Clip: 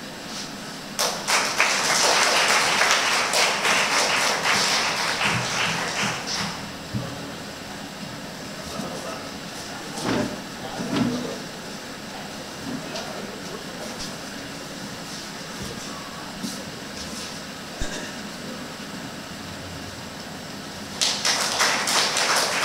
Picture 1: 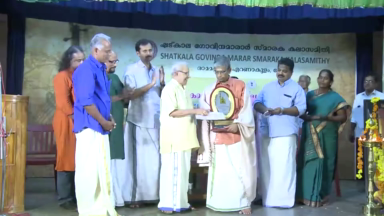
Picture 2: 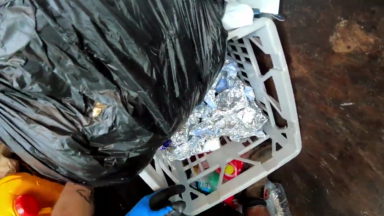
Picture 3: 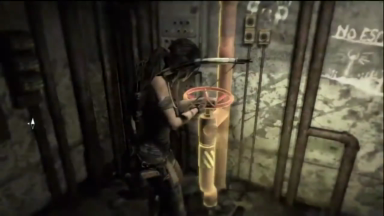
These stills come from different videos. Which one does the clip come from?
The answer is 1